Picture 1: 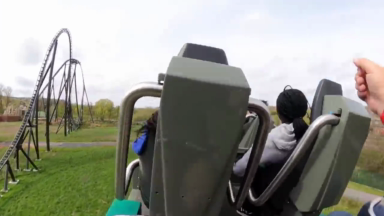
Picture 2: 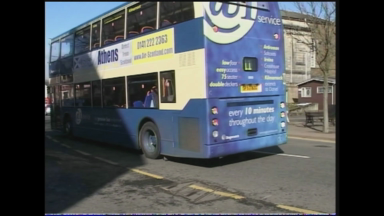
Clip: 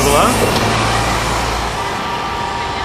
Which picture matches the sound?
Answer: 2